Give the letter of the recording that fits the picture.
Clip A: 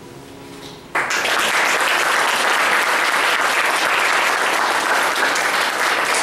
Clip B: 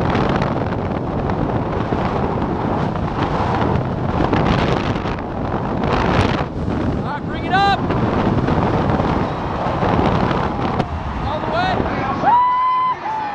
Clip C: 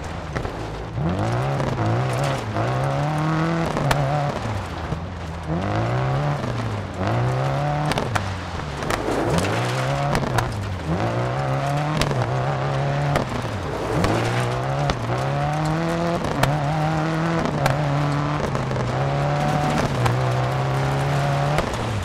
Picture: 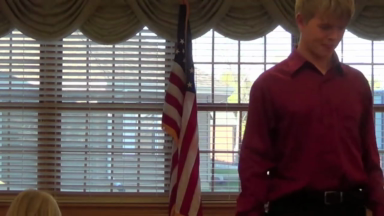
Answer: A